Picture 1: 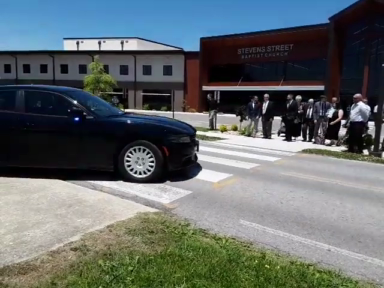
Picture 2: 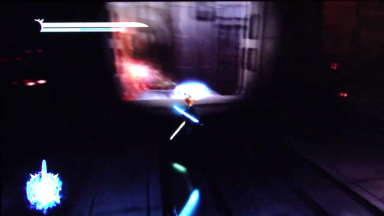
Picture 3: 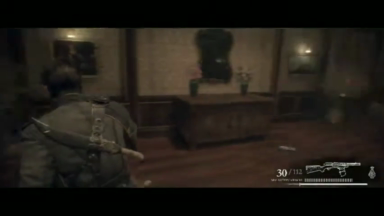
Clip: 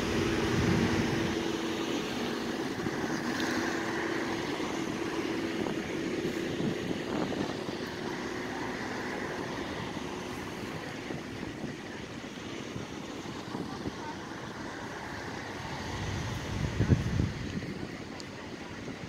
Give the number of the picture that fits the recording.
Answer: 1